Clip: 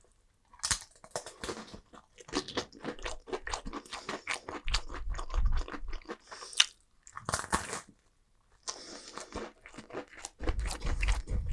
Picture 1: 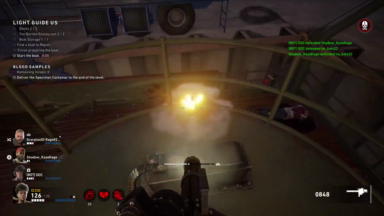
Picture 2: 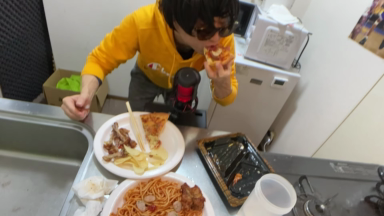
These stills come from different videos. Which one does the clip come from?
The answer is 2